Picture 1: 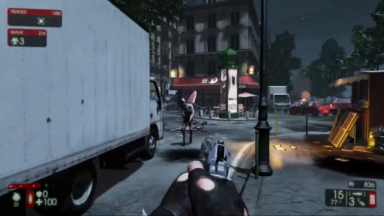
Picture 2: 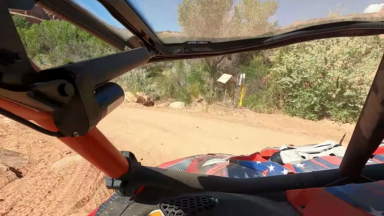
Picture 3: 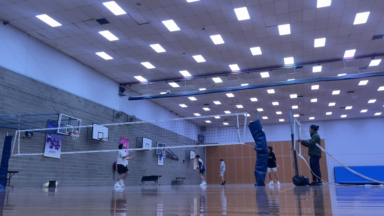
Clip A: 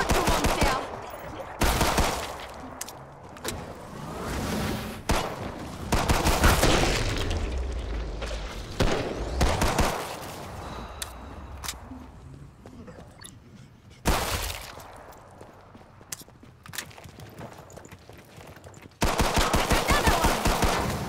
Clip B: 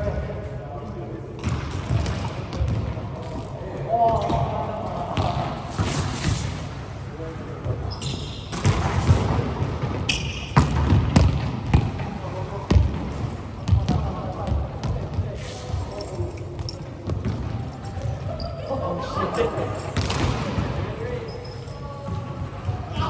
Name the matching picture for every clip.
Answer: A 1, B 3